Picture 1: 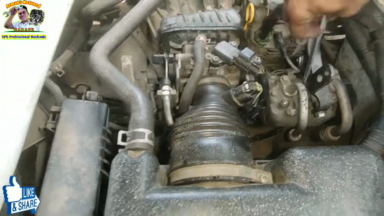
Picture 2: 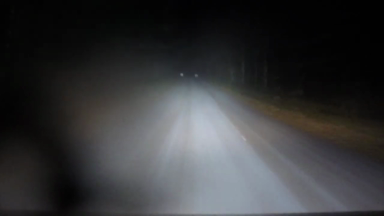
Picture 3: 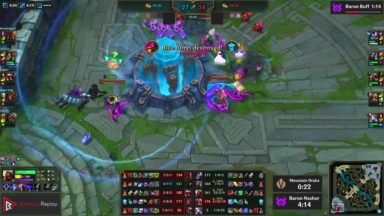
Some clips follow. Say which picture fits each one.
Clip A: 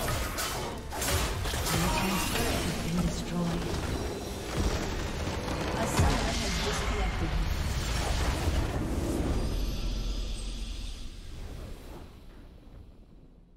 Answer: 3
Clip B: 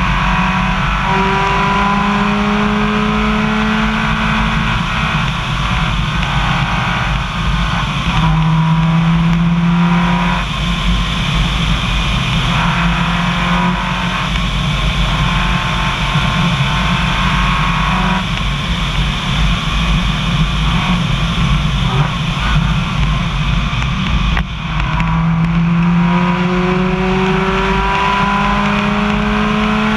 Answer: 2